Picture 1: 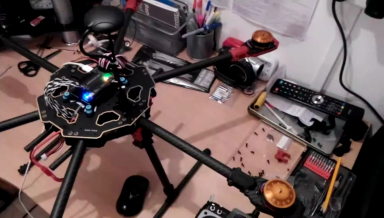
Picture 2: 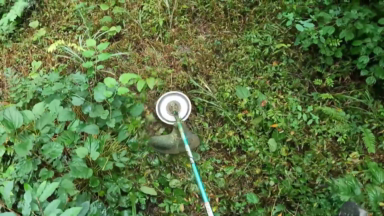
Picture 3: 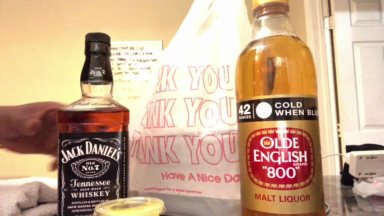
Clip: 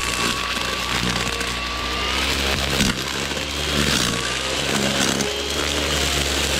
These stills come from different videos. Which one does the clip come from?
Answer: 2